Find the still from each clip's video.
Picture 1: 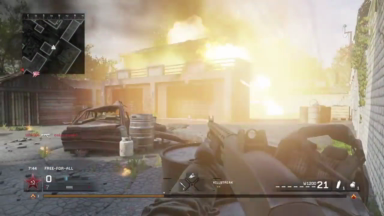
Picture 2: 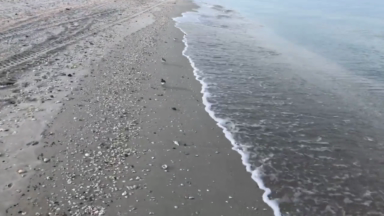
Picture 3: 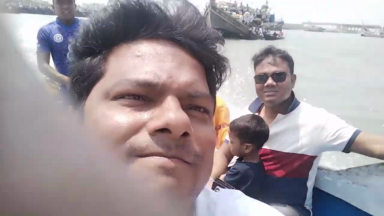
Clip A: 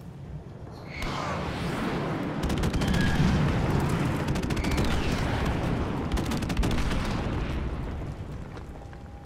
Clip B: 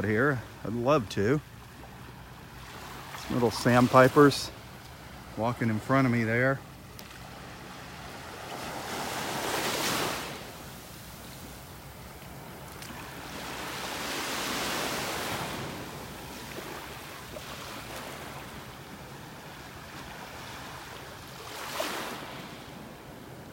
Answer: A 1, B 2